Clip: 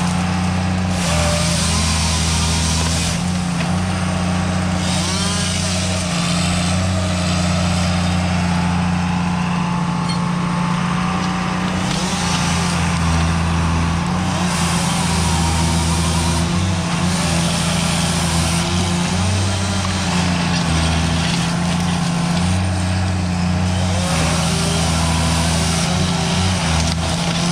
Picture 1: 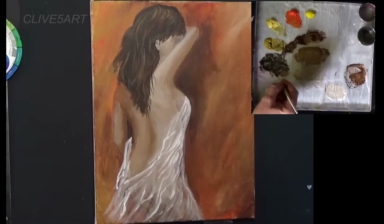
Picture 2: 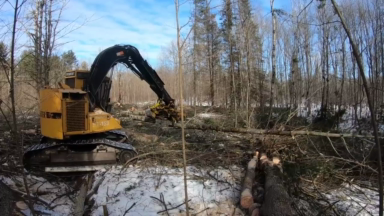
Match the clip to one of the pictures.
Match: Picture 2